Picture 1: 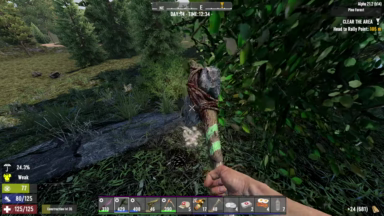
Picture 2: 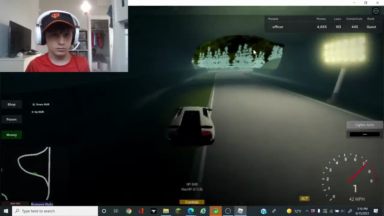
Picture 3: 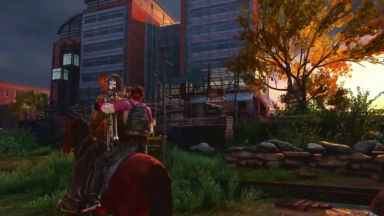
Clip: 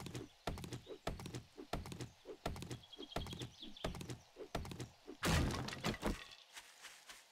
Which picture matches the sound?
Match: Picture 1